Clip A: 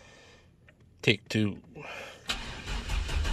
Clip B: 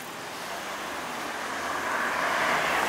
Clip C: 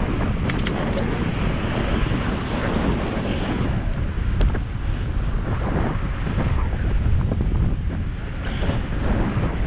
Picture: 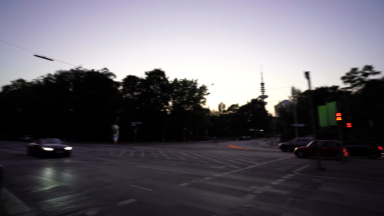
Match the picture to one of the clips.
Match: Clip B